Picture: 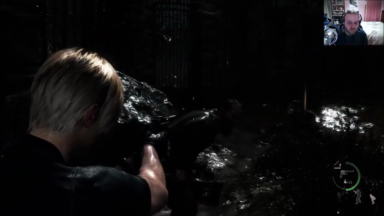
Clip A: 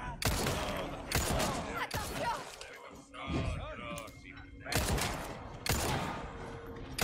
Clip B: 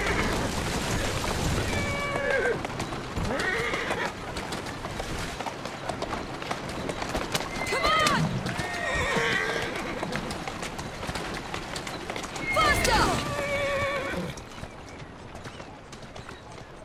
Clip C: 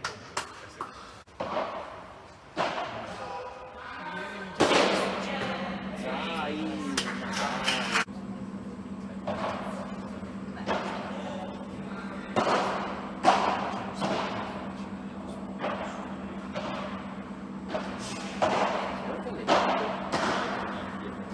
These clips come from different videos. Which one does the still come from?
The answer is A